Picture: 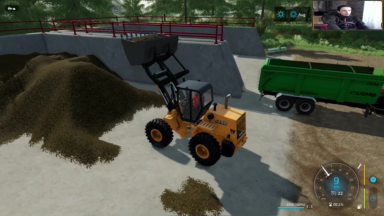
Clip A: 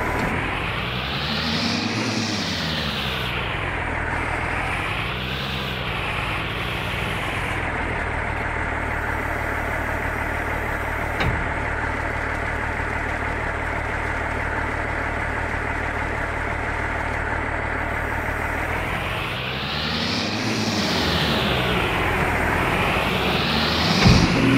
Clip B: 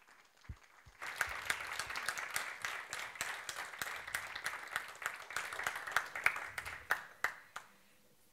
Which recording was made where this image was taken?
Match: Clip A